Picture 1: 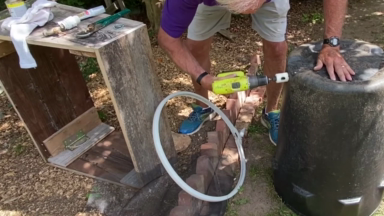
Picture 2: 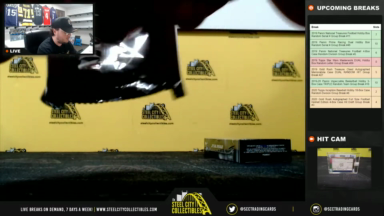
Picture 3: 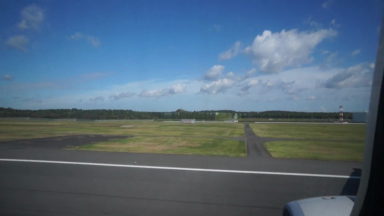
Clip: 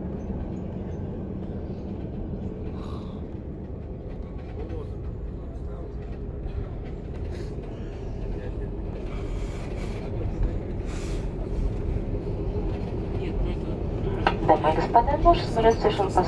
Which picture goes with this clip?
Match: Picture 3